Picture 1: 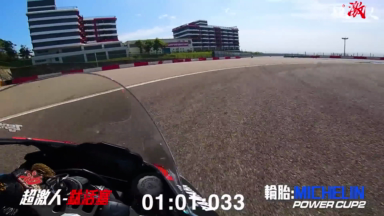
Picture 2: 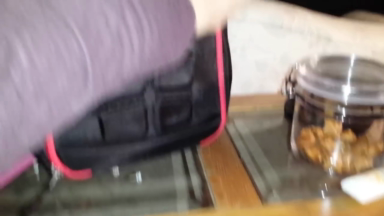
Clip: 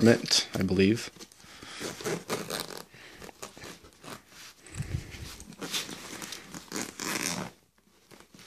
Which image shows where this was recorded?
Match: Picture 2